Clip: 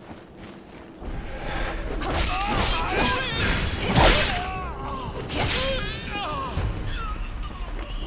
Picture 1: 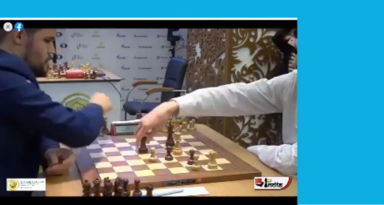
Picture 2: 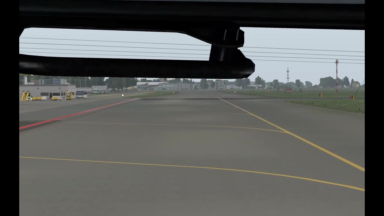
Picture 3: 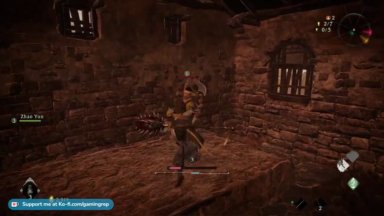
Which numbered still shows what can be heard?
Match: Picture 3